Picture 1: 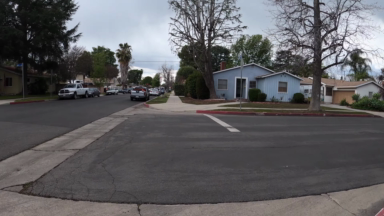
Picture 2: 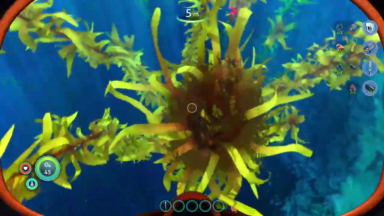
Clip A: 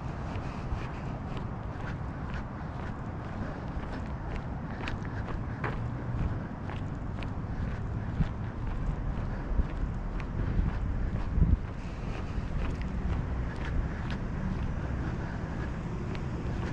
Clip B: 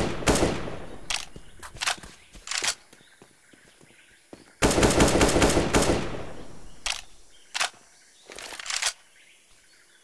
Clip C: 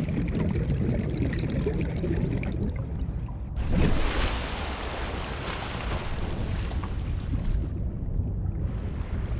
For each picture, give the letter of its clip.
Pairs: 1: A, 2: C